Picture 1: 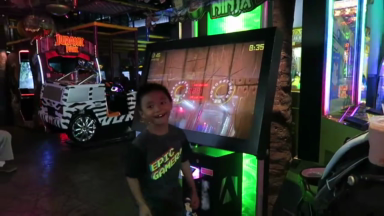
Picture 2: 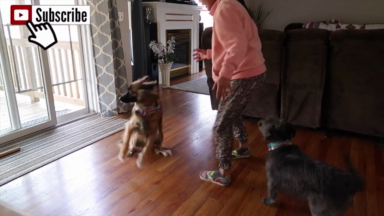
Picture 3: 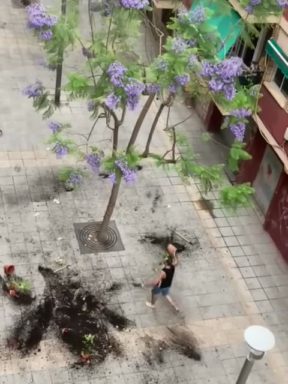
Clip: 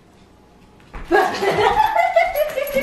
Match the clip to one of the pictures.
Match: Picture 2